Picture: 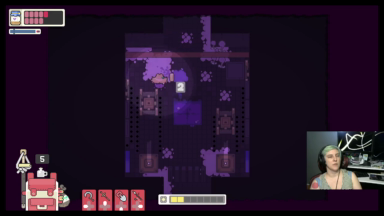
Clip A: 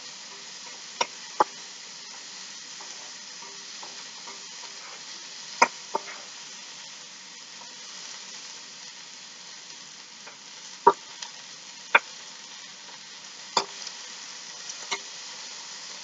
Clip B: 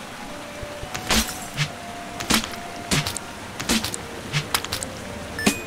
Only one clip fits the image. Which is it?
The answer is B